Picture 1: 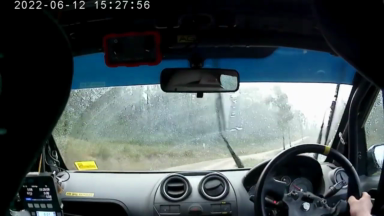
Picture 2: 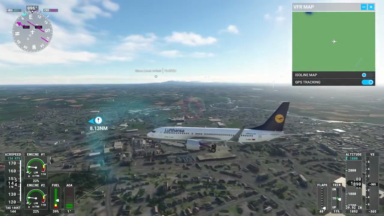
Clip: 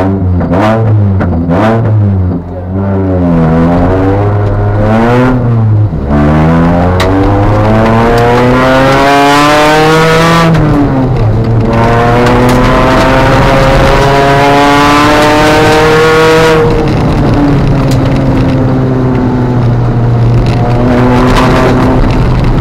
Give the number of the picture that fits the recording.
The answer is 1